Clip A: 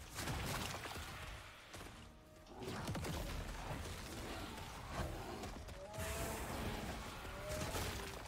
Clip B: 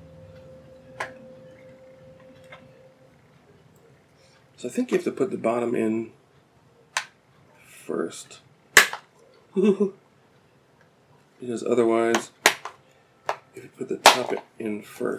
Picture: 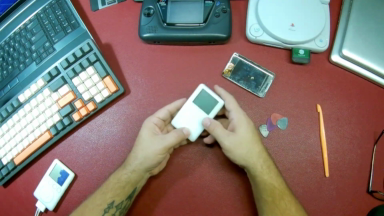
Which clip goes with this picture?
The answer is B